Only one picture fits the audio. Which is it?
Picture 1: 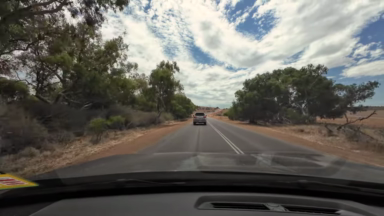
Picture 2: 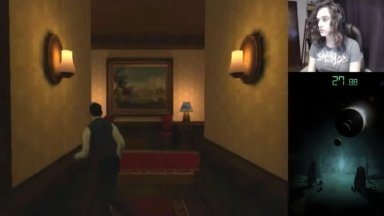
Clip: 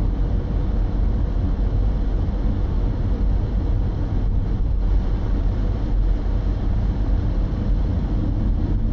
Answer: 1